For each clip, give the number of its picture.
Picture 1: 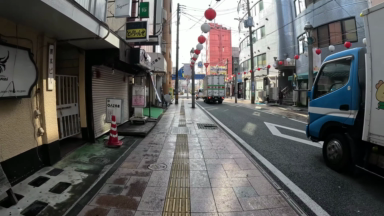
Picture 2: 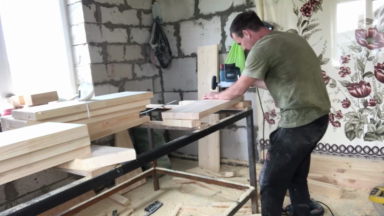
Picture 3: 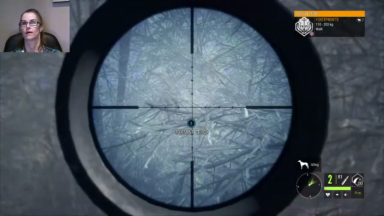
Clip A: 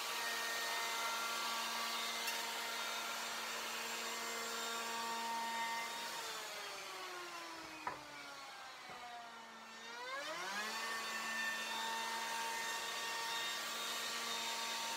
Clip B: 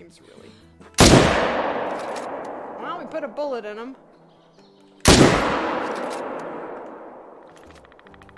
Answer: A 2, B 3